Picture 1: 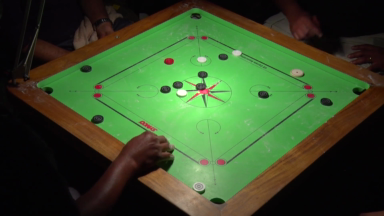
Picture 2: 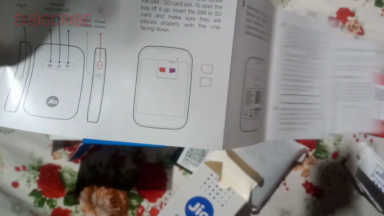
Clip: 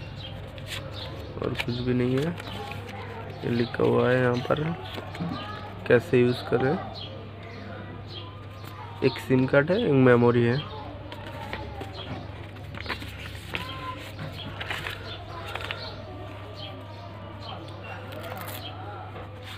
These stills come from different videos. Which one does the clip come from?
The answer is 2